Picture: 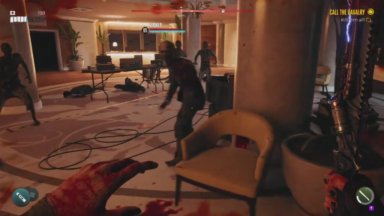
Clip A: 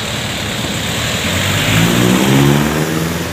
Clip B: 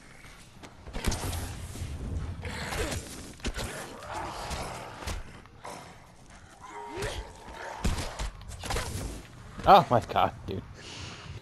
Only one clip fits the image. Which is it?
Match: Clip B